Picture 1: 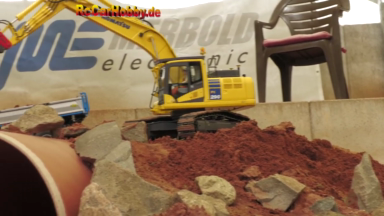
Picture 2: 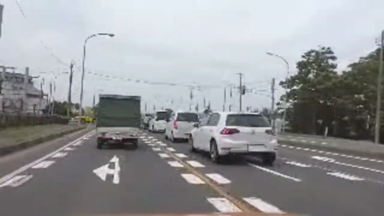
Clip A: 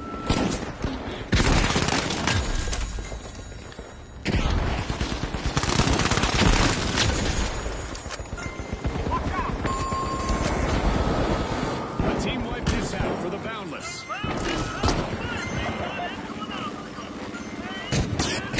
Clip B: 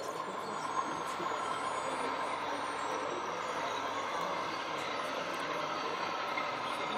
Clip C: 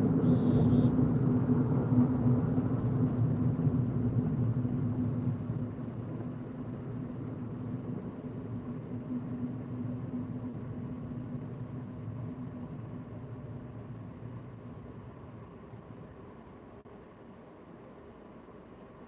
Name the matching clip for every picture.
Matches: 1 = B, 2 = C